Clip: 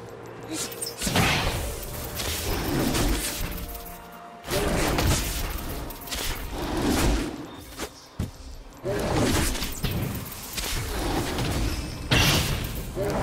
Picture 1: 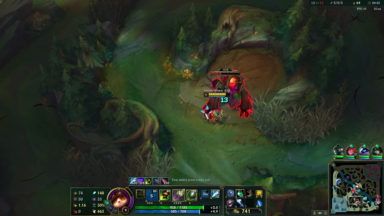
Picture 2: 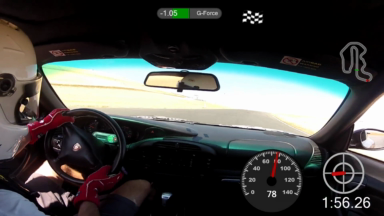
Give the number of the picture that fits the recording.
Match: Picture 1